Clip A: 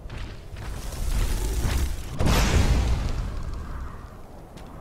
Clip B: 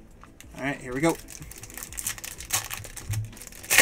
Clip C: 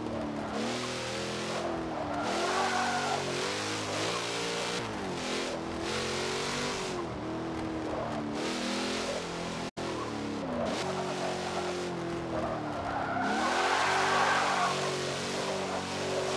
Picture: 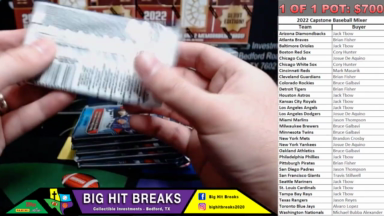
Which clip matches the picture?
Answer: B